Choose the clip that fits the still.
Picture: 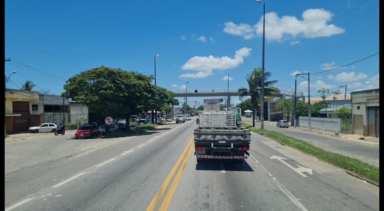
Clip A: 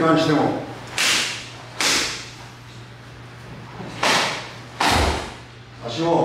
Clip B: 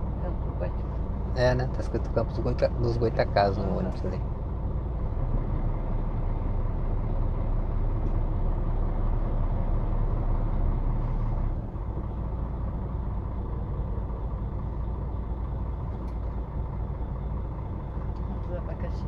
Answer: B